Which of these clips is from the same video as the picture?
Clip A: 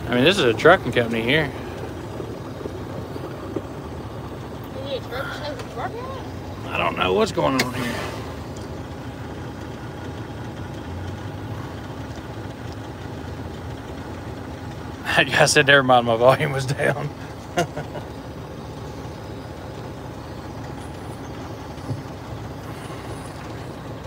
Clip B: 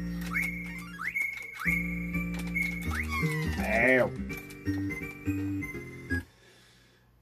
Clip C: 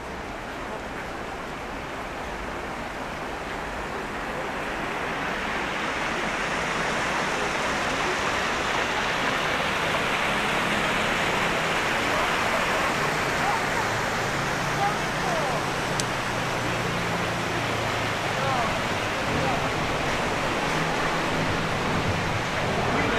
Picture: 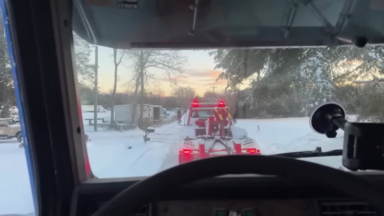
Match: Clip A